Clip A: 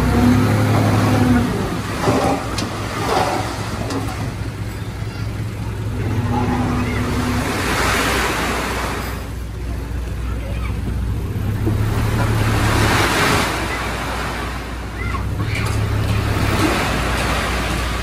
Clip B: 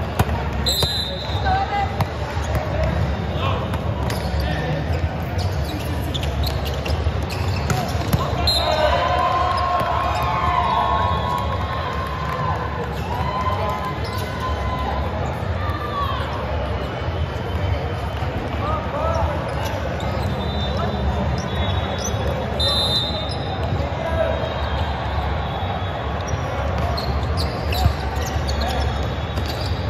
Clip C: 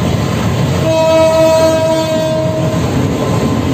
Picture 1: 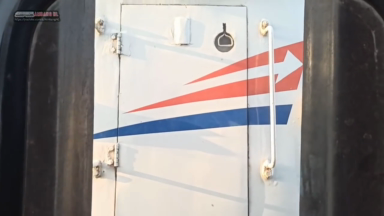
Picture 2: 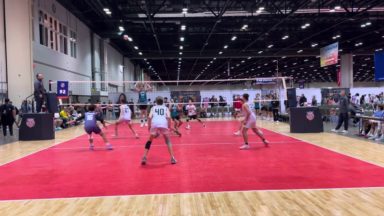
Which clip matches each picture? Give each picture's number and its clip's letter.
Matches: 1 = C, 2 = B